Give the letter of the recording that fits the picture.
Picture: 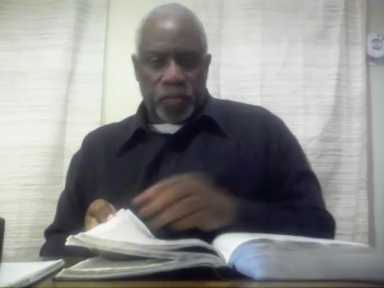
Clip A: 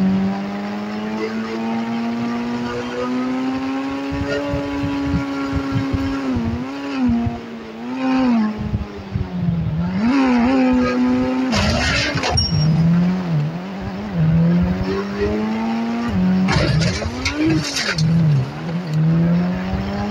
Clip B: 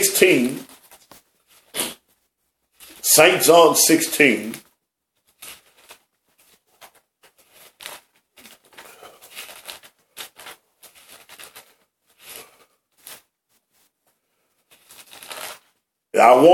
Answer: B